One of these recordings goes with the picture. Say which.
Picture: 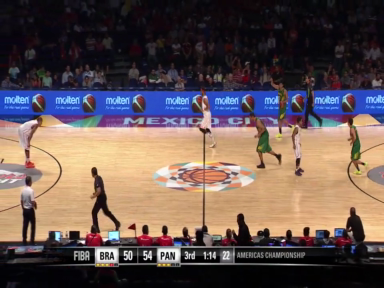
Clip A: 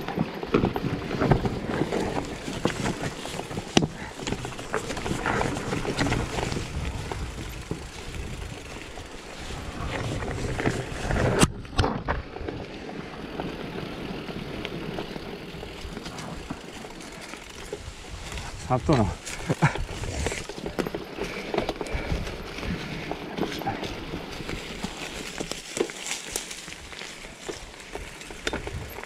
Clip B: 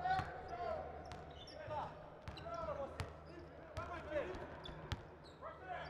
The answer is B